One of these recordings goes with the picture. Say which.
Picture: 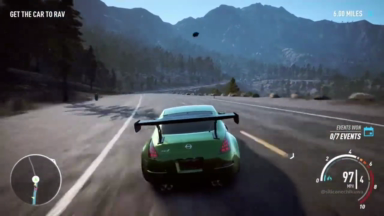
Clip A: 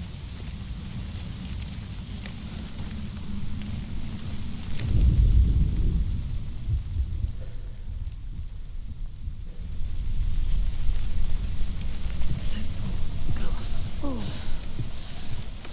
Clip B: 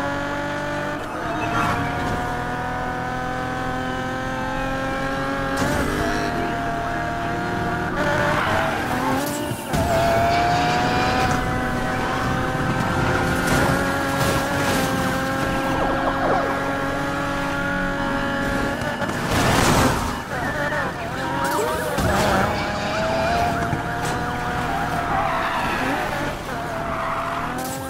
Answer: B